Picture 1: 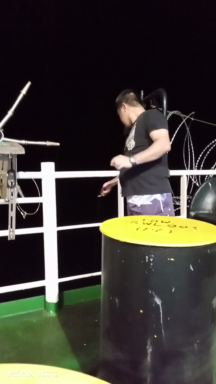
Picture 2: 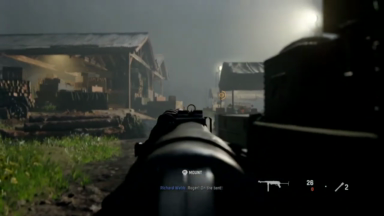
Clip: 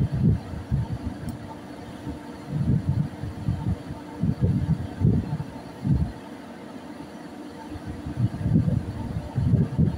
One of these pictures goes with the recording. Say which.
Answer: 1